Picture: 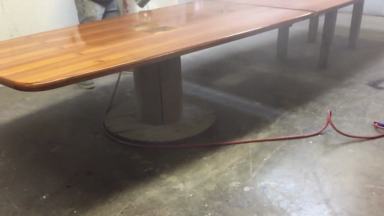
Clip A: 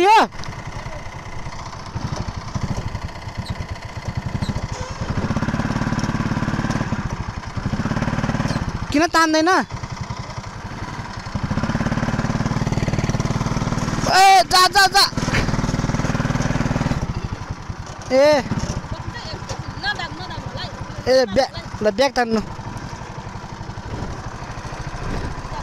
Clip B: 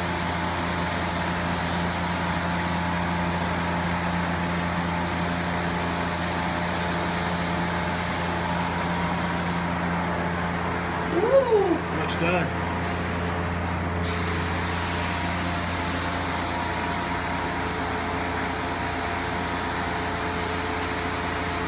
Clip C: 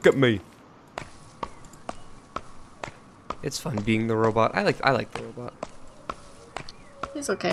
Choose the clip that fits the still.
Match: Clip B